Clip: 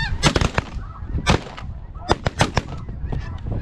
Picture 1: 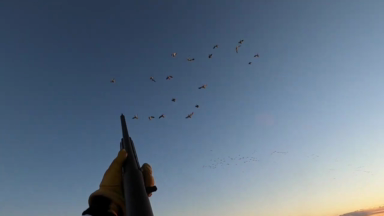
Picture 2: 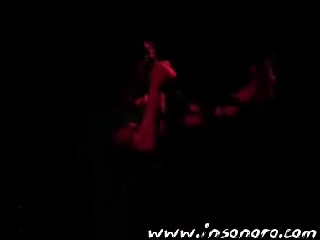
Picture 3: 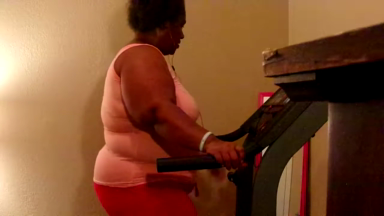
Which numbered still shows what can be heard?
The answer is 1